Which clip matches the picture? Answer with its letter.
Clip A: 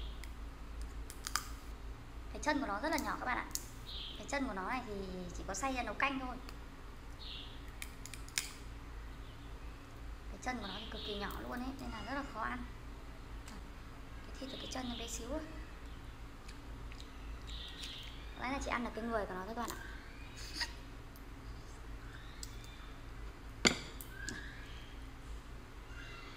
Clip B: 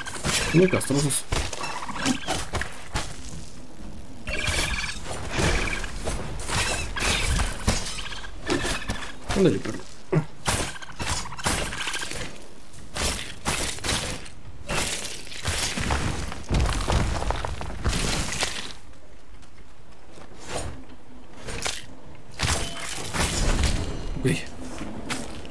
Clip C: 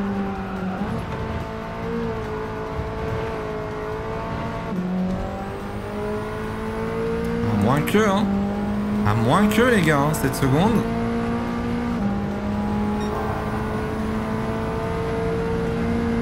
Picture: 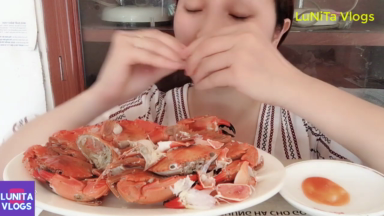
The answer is A